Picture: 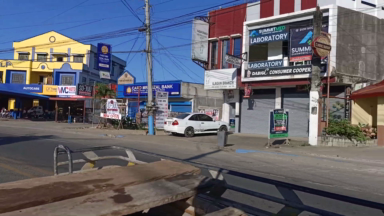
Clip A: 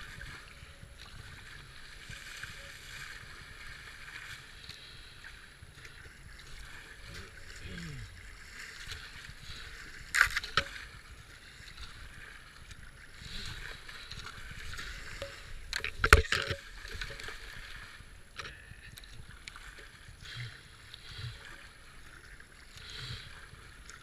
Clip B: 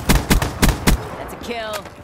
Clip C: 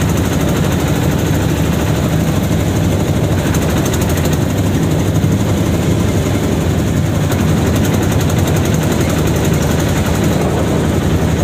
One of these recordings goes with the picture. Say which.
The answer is C